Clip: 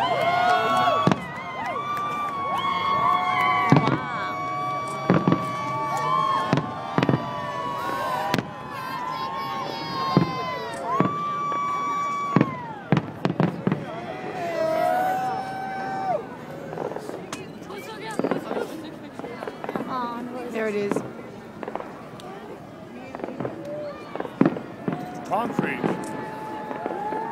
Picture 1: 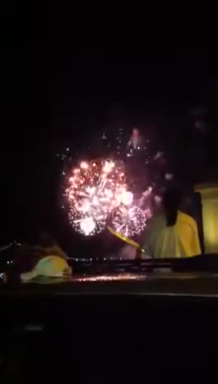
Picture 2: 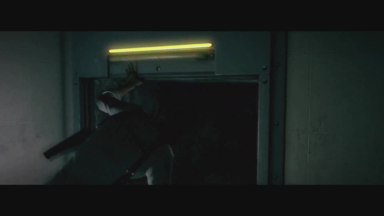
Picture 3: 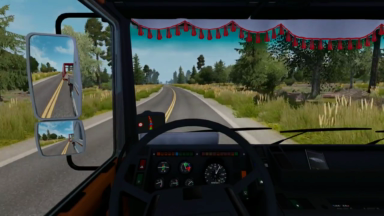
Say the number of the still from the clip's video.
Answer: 1